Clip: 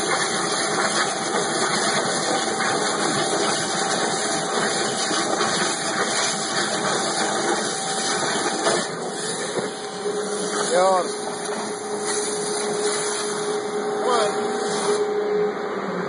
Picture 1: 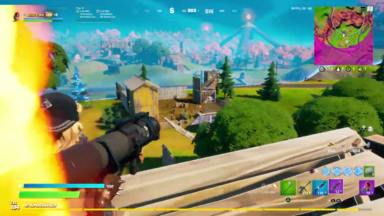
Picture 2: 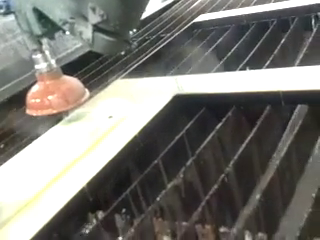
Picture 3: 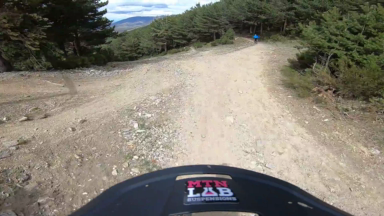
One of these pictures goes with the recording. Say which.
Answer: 2